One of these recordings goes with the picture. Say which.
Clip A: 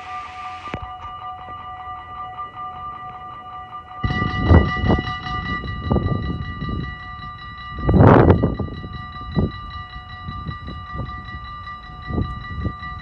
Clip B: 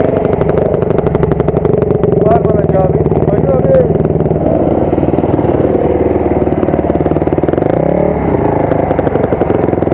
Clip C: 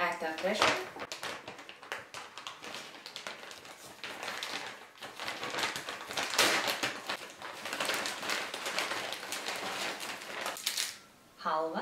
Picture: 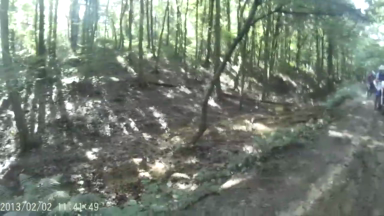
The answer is B